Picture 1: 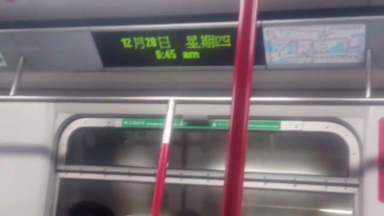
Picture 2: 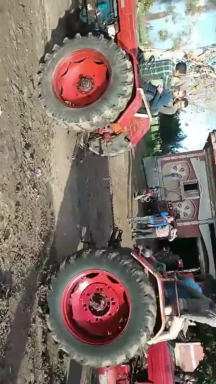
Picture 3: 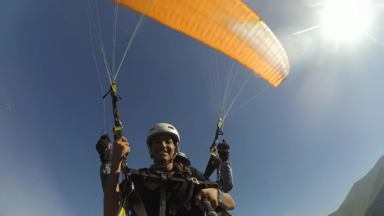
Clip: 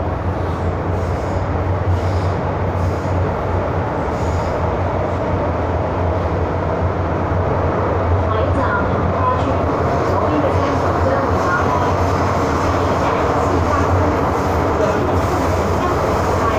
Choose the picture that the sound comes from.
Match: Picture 1